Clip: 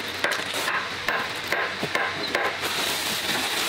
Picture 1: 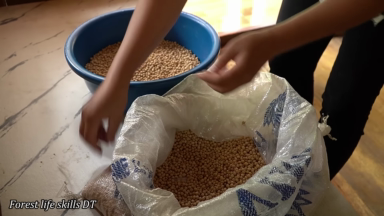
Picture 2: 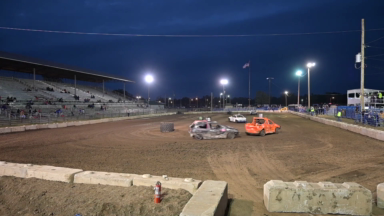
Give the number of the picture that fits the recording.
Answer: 1